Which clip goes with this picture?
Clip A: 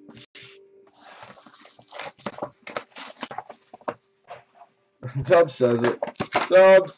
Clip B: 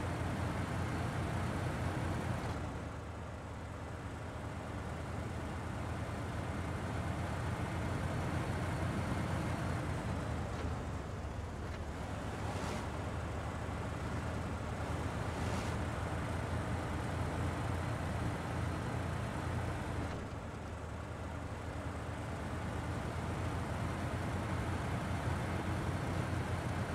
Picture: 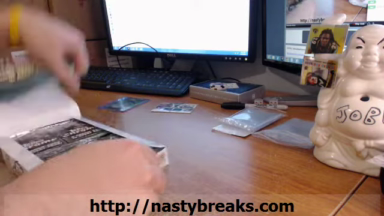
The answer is A